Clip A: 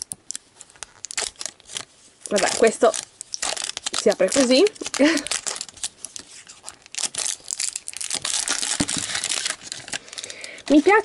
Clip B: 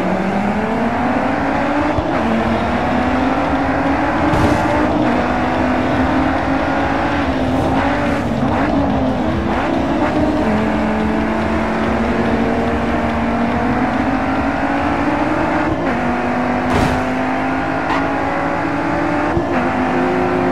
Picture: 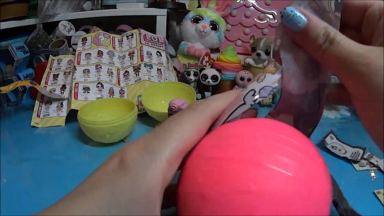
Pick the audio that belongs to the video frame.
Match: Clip A